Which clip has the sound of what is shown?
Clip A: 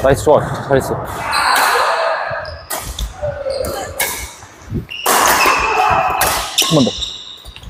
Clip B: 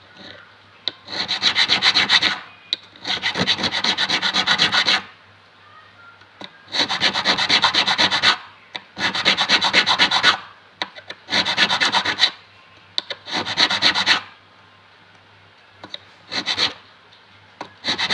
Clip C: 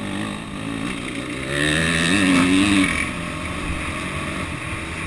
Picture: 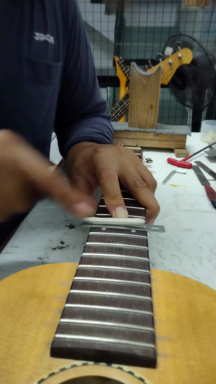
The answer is B